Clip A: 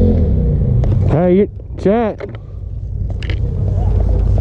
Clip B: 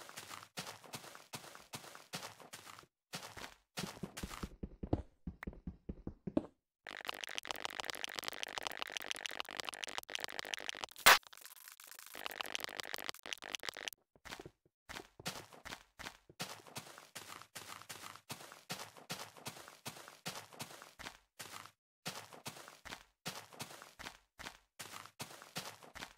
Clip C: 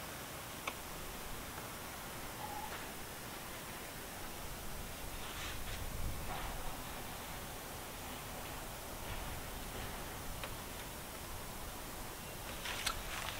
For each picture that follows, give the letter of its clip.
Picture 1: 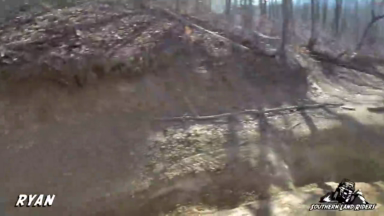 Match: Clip A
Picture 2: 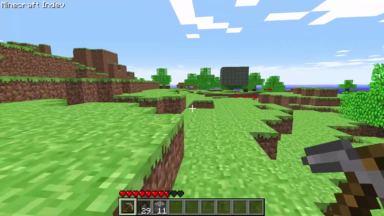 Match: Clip B